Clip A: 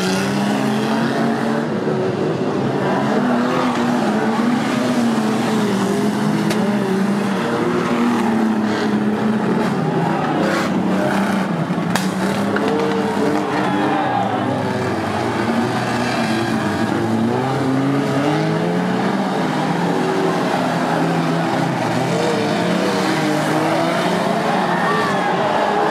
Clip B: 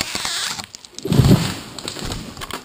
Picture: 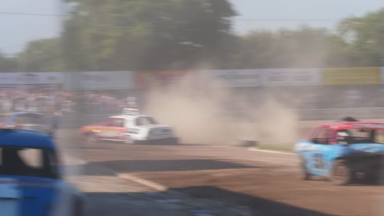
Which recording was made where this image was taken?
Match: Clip A